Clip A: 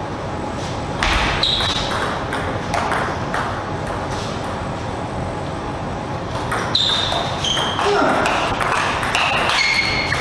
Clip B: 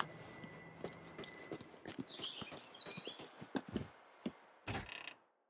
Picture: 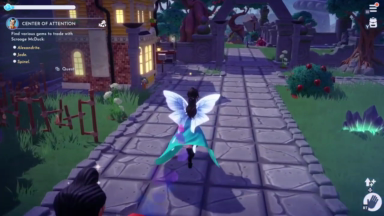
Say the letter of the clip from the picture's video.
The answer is B